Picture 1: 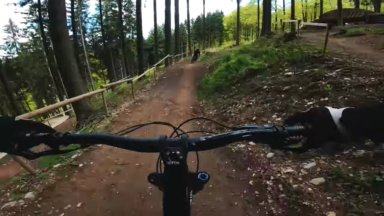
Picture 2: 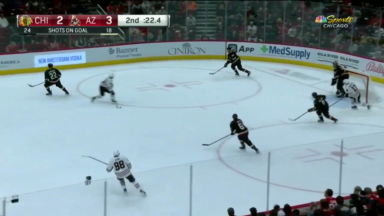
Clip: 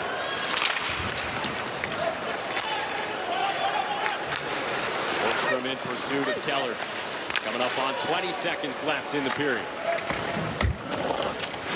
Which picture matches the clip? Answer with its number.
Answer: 2